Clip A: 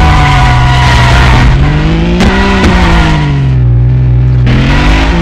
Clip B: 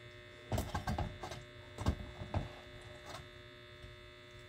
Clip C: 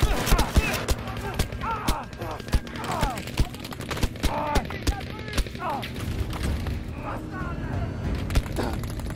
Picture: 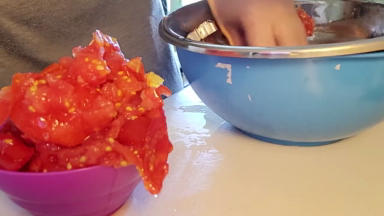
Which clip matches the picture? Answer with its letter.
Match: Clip B